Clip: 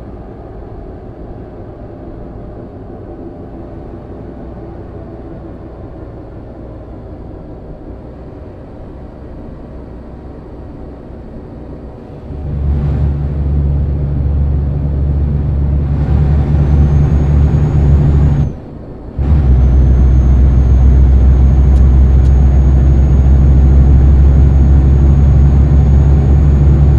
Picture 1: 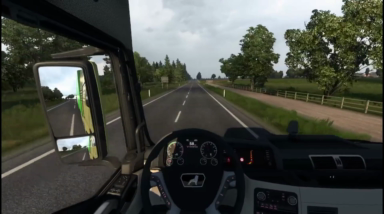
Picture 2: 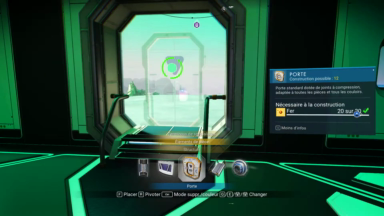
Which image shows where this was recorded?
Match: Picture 1